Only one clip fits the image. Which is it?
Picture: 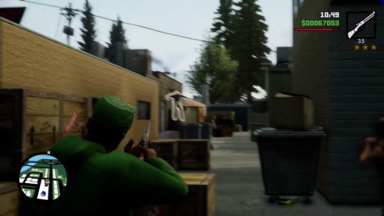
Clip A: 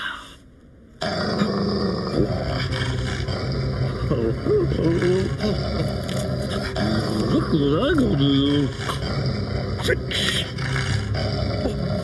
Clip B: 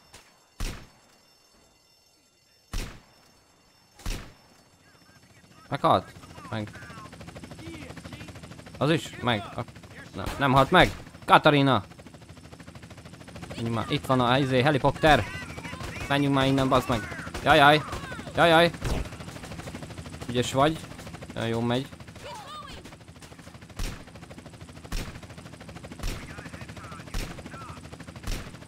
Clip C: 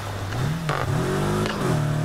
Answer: B